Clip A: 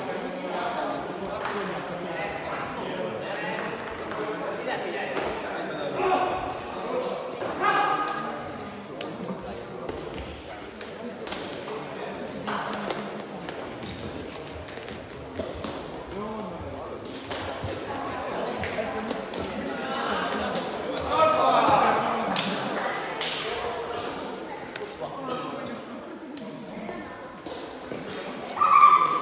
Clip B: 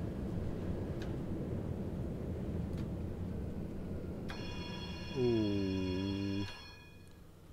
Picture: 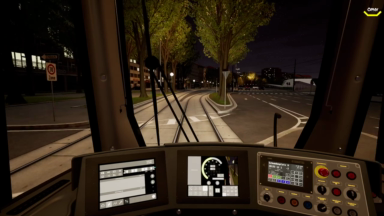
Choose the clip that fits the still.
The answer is B